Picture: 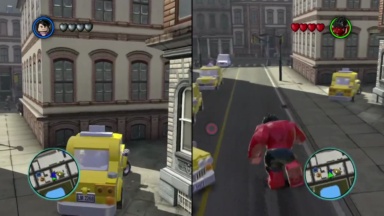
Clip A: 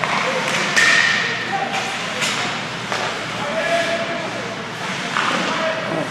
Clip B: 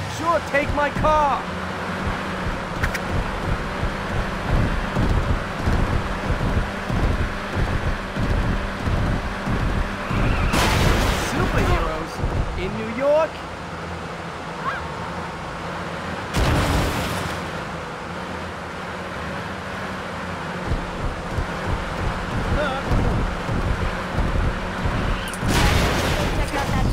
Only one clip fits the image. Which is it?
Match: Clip B